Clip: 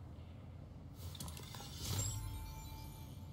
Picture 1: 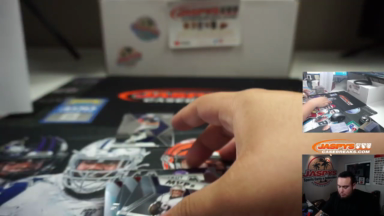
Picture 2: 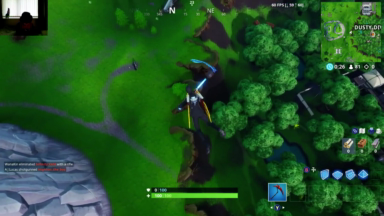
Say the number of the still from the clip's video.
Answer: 2